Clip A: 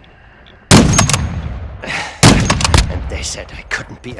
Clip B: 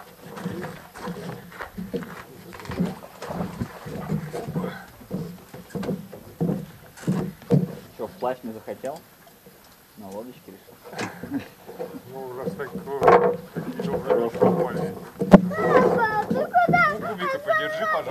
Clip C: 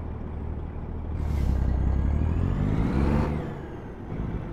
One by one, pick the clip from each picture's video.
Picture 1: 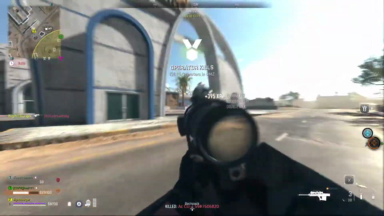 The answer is A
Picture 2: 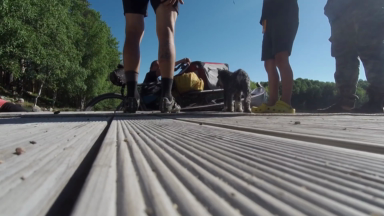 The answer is B